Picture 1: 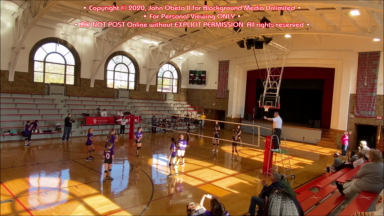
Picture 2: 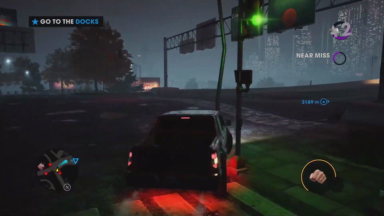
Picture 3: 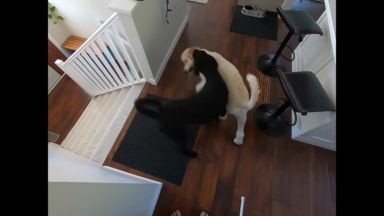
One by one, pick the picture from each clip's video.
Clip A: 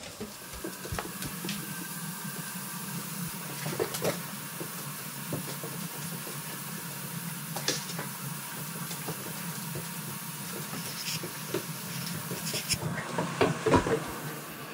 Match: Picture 3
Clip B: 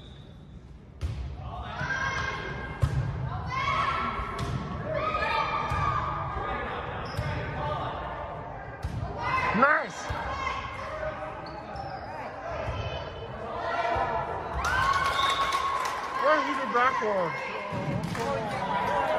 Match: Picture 1